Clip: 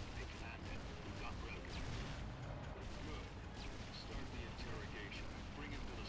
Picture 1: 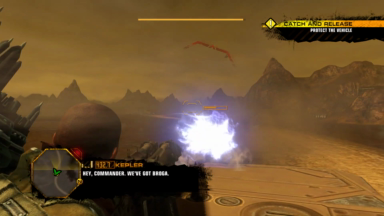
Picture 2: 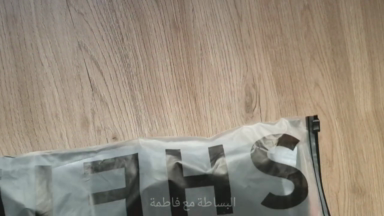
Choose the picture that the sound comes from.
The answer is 1